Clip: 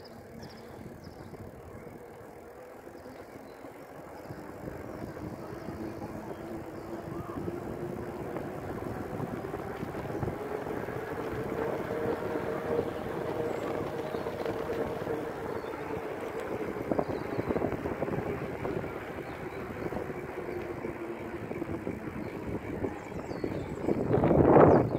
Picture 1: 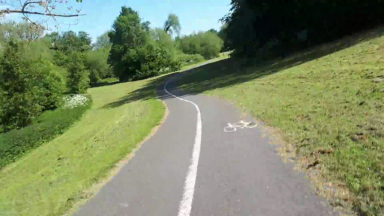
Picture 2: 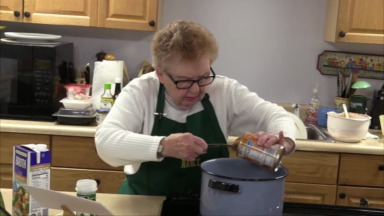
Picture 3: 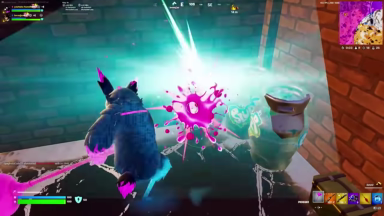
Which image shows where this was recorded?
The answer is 1